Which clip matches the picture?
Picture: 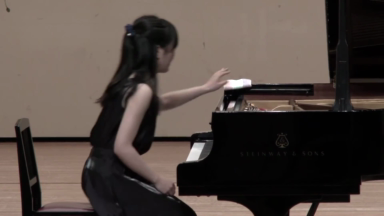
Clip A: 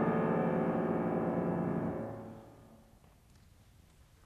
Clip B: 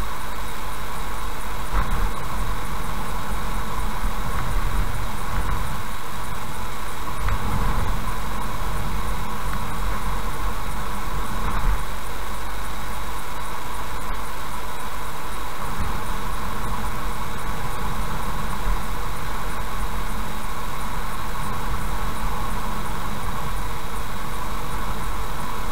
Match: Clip A